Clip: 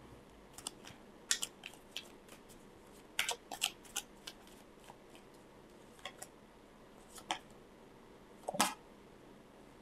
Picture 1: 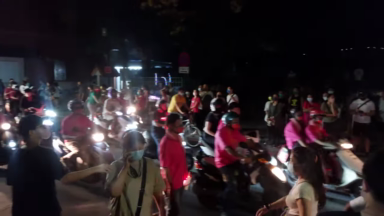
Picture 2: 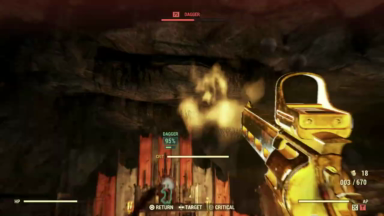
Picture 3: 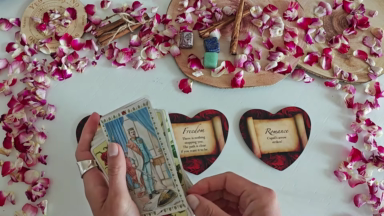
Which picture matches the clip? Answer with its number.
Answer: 3